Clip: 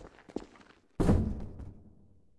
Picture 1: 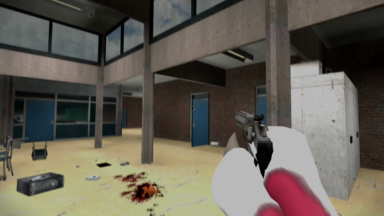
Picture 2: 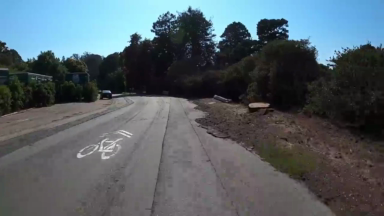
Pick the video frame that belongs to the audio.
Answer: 1